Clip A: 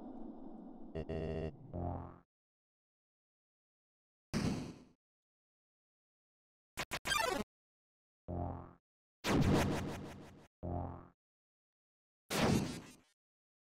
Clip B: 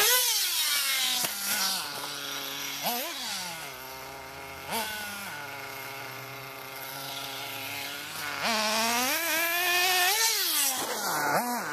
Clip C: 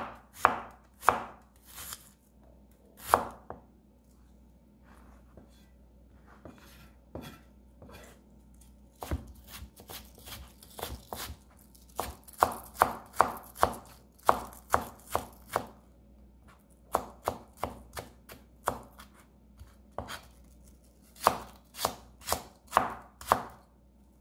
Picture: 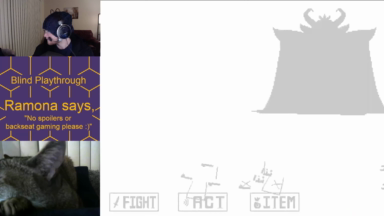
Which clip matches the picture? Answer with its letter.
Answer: A